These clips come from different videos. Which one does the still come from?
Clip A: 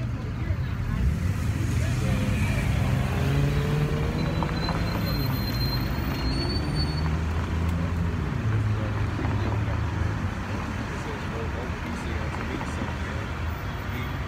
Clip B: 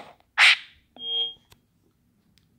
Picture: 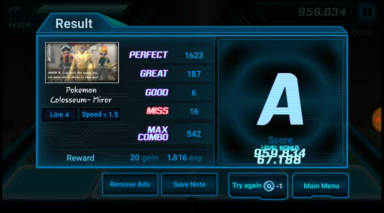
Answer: B